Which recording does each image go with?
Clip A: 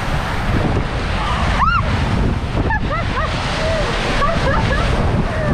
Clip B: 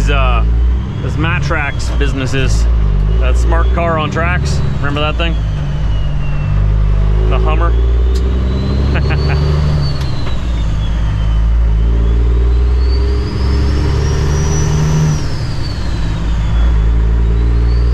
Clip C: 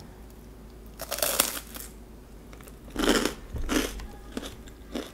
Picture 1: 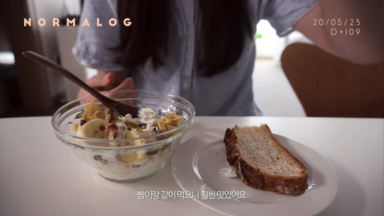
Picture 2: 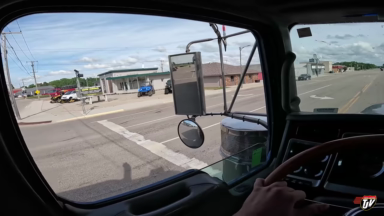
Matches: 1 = C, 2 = B